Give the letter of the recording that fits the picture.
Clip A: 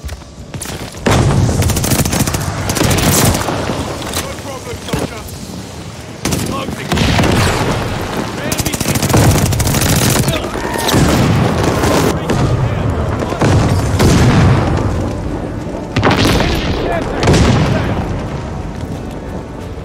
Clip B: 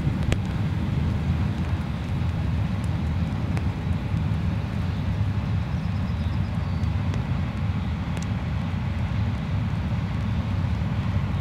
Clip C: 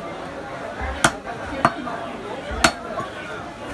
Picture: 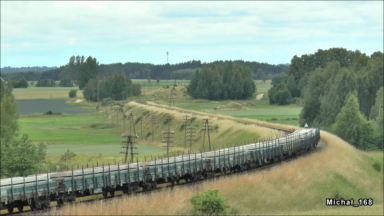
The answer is B